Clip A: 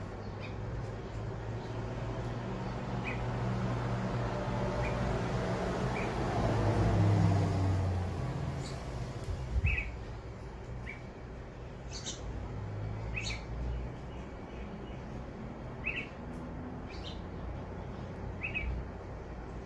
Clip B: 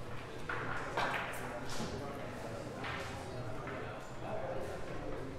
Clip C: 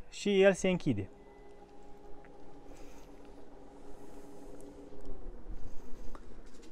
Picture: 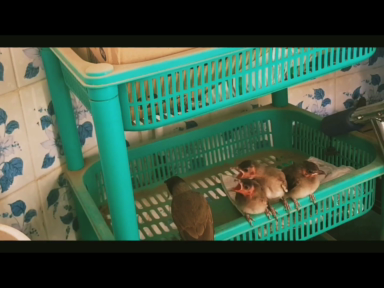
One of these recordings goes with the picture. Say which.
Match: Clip A